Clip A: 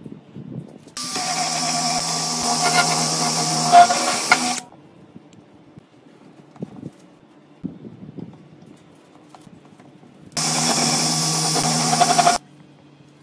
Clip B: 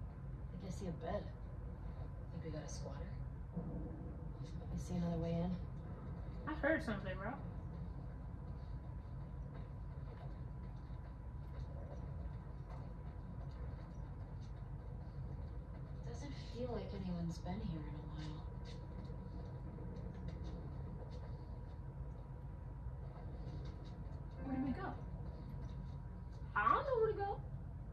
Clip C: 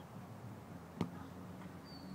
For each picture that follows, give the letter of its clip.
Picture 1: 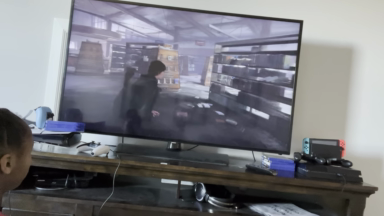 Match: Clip B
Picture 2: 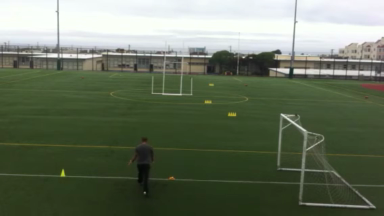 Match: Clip C